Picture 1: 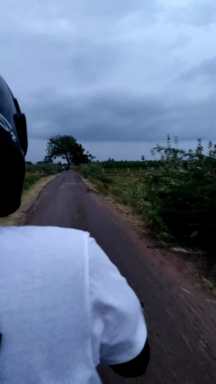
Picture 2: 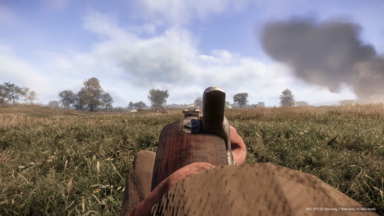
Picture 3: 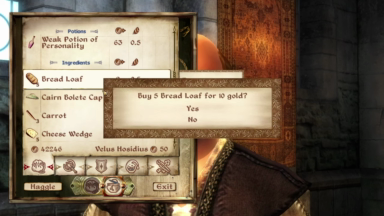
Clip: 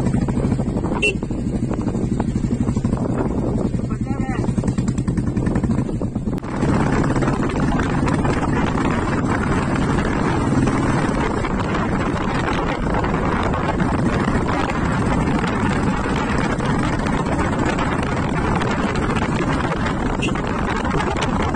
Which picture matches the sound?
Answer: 1